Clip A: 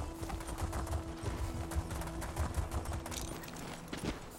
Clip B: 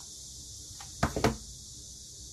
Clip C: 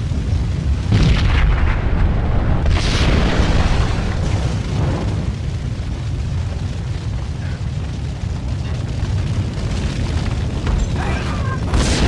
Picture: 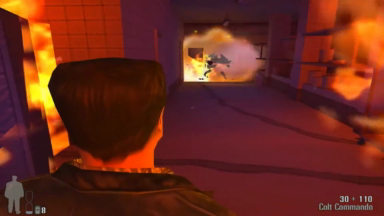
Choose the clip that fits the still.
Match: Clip C